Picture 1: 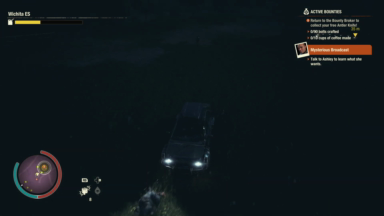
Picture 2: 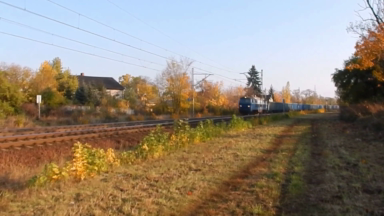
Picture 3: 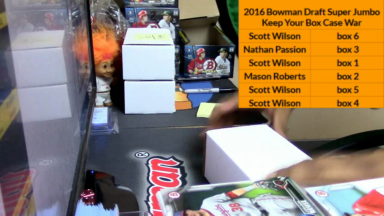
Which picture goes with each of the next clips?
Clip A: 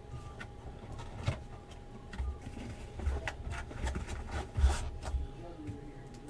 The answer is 3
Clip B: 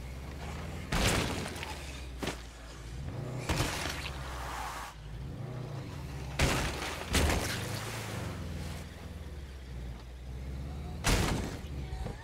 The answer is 1